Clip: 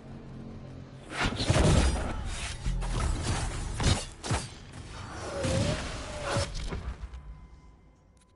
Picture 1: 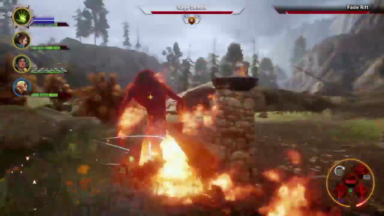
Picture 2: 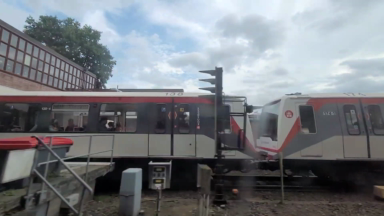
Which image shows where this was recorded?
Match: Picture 1